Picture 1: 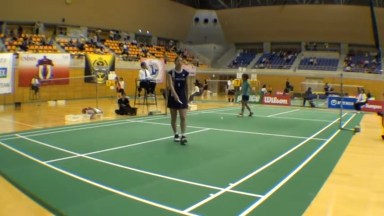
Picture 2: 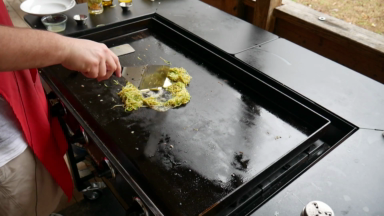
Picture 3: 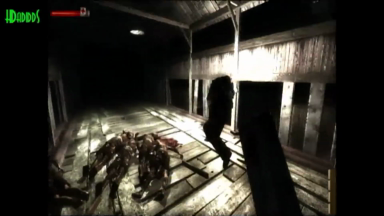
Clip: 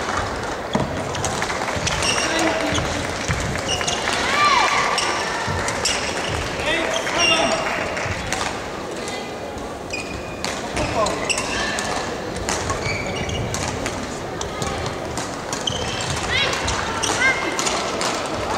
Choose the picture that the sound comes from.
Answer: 1